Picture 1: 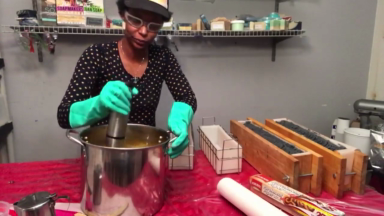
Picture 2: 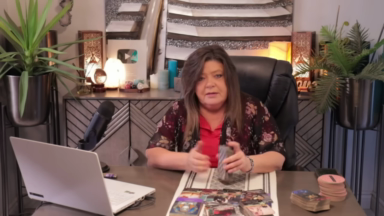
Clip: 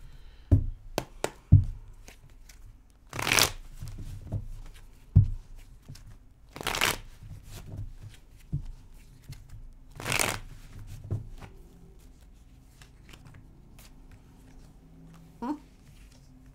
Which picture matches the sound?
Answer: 2